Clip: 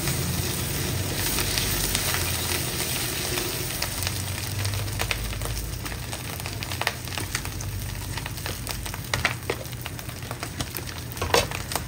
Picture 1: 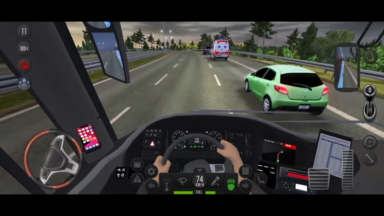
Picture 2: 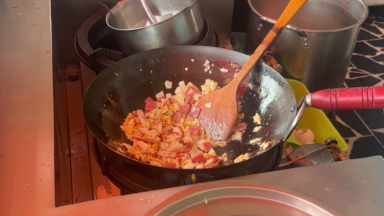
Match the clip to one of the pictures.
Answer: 2